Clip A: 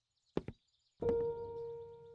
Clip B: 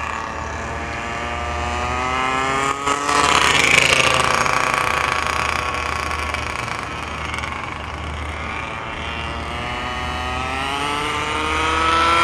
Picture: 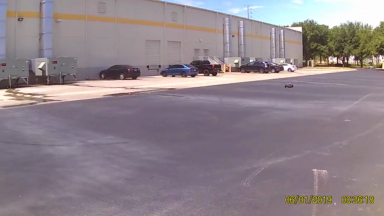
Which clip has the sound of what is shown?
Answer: B